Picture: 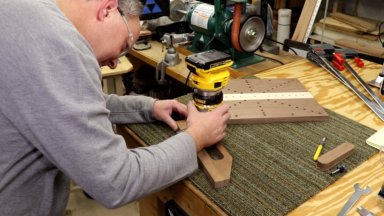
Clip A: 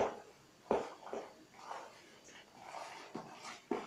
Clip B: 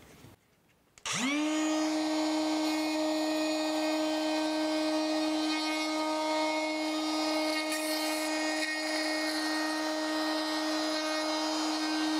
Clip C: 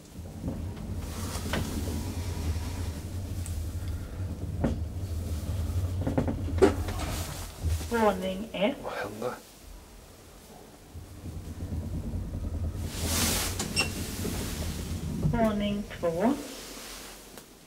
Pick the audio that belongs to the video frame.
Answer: B